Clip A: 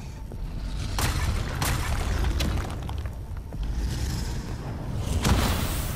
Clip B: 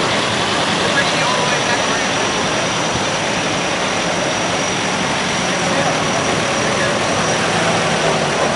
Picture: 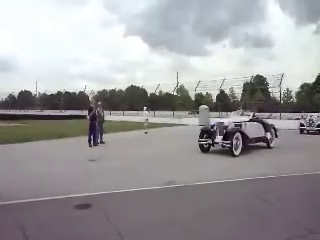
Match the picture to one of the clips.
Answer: B